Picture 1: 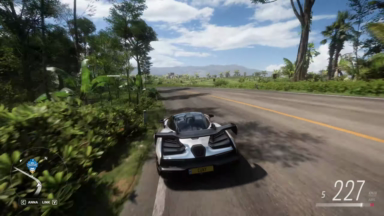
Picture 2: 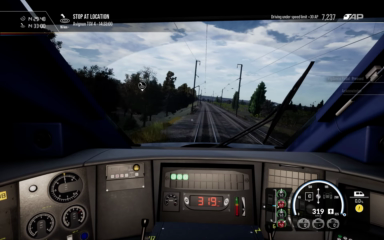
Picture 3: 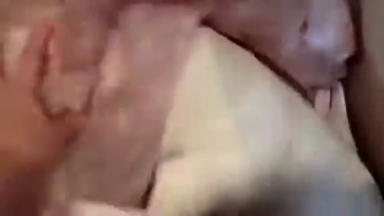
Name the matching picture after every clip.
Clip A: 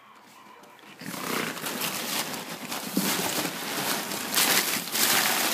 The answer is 3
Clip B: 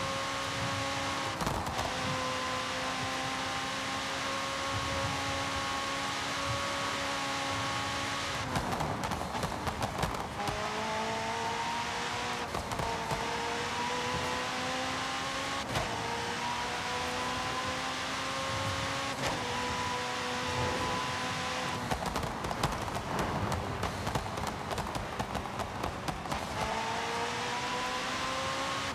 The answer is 1